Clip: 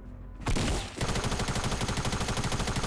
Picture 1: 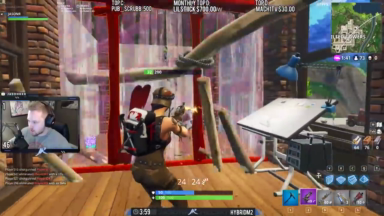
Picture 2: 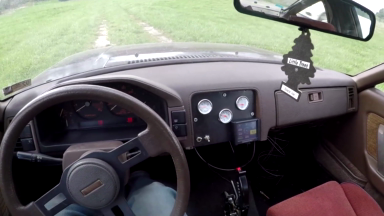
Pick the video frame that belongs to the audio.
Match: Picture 1